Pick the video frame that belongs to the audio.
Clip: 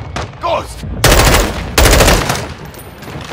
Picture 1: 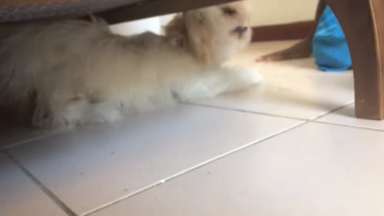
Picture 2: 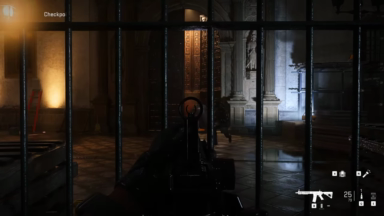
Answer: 2